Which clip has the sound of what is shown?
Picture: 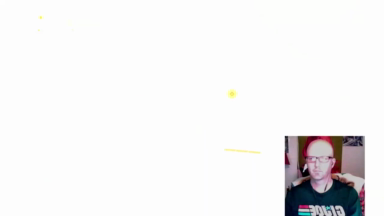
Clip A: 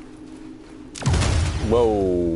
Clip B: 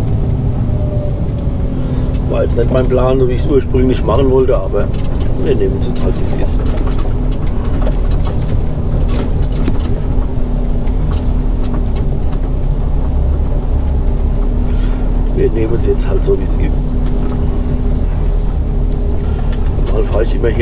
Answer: A